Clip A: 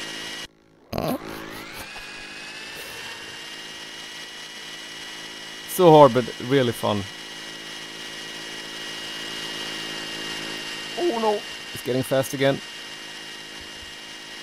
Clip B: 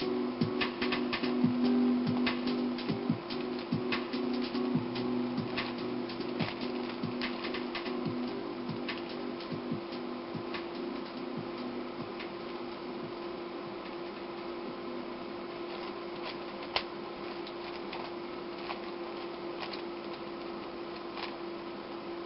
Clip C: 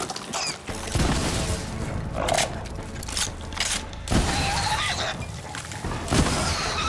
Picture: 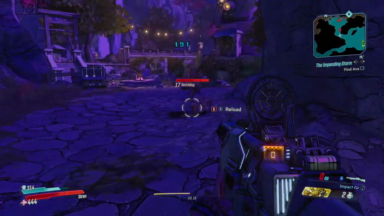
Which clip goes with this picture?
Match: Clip C